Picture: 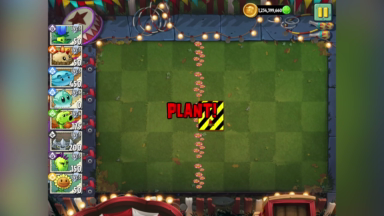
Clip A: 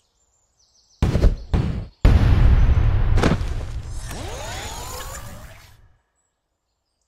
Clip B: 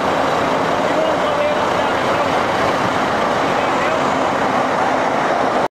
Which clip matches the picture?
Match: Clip A